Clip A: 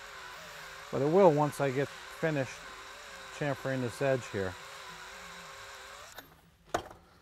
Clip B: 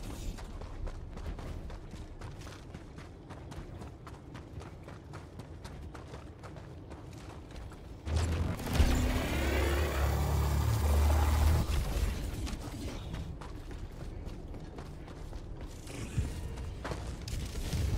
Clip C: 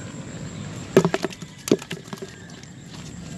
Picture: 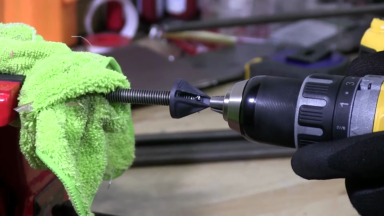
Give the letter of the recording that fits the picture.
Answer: A